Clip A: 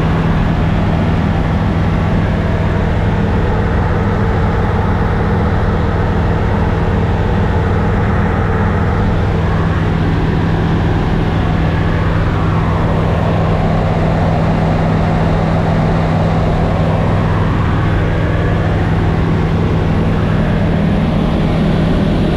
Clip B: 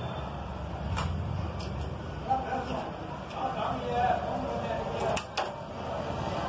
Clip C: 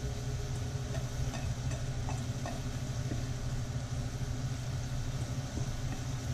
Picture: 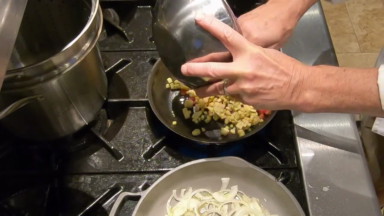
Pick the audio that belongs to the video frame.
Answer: C